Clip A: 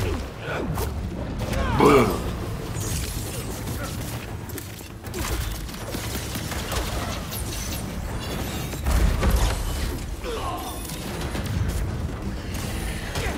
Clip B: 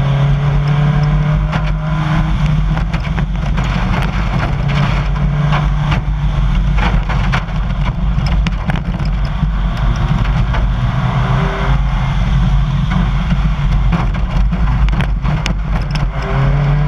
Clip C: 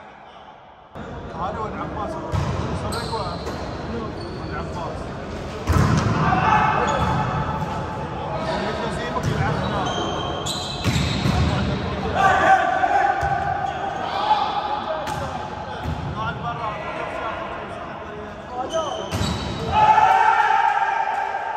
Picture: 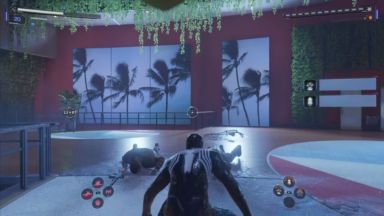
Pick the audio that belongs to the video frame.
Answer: A